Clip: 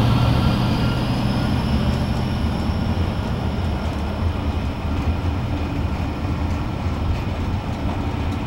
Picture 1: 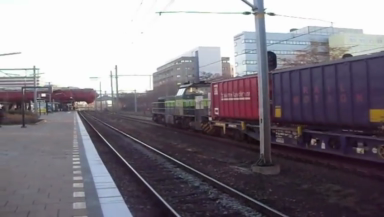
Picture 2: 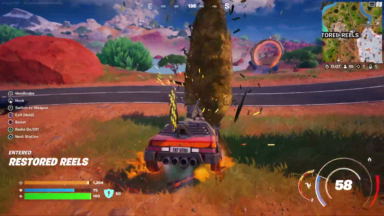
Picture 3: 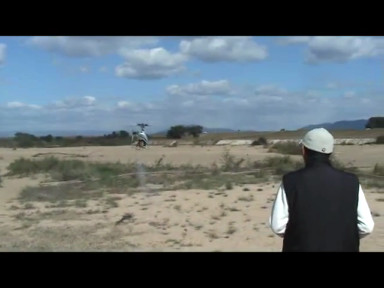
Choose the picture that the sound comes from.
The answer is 1